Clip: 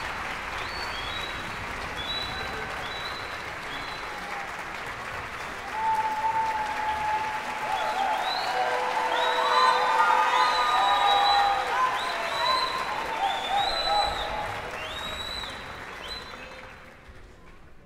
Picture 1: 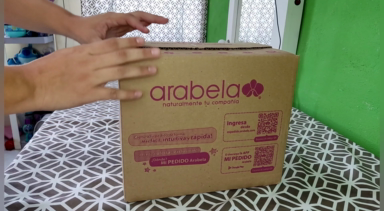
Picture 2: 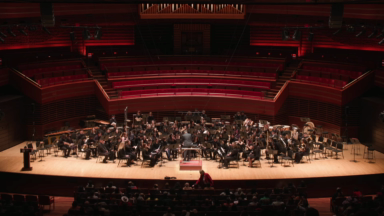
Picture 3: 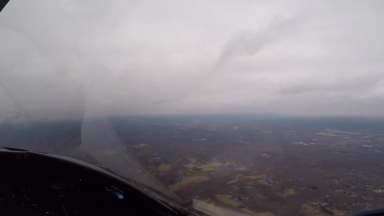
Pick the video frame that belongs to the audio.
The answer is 2